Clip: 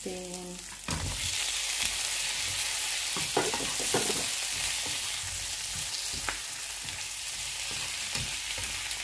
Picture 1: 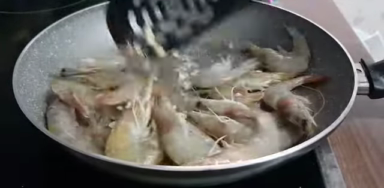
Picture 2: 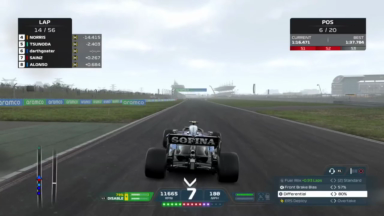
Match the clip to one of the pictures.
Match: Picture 1